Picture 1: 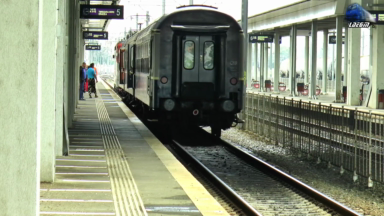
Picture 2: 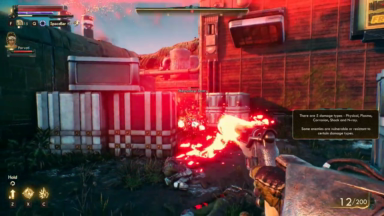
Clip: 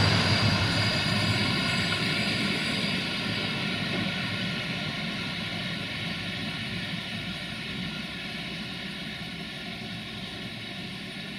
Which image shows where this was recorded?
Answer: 1